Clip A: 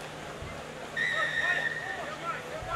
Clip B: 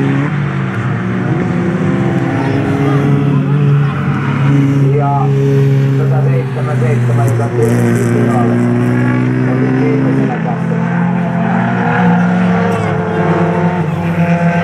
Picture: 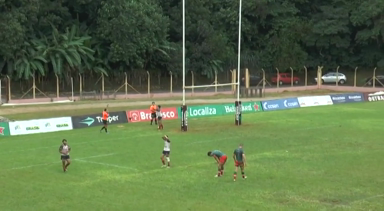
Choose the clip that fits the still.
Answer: A